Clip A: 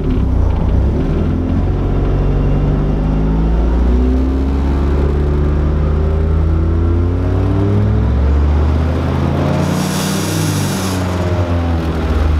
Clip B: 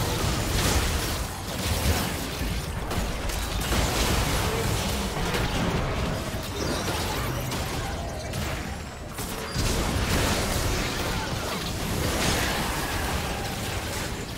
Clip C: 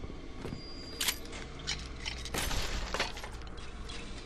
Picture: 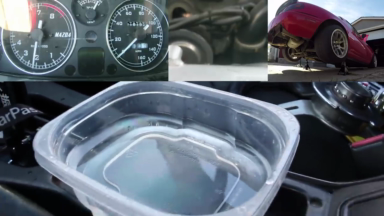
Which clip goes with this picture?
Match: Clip A